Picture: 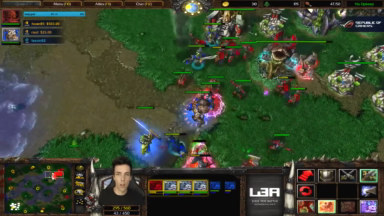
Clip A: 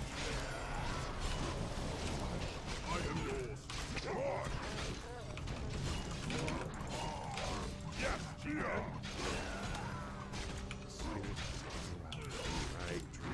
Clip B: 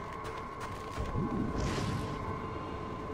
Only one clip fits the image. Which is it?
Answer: A